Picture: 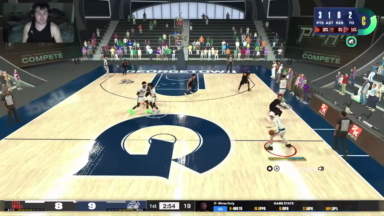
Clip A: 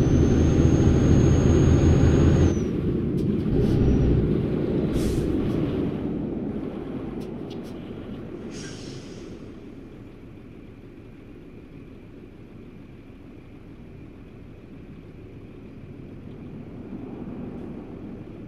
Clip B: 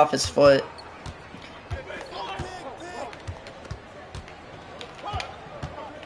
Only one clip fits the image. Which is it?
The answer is B